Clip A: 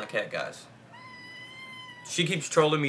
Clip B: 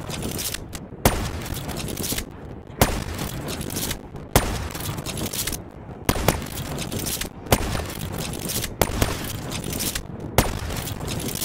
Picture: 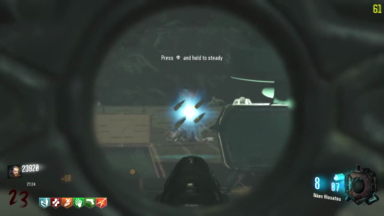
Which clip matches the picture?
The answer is B